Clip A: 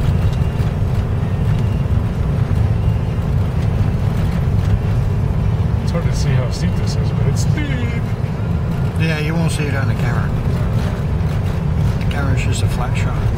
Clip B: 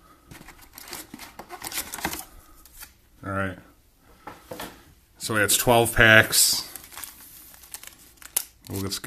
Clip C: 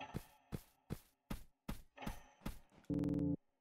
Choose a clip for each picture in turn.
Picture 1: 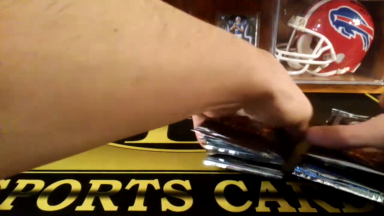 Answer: B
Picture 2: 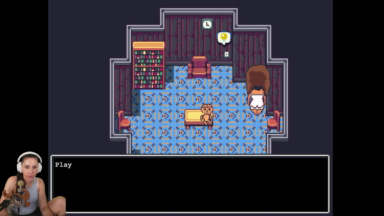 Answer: C